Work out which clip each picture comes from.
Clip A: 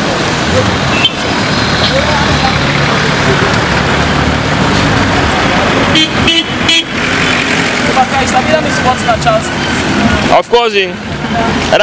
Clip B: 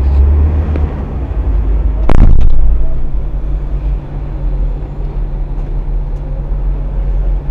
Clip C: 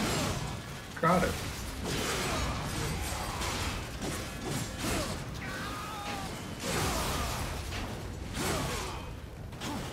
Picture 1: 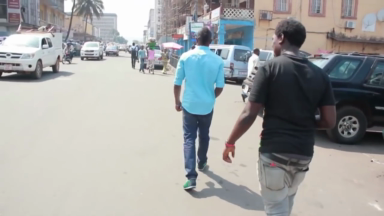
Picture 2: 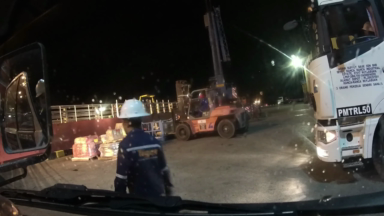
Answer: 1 A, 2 B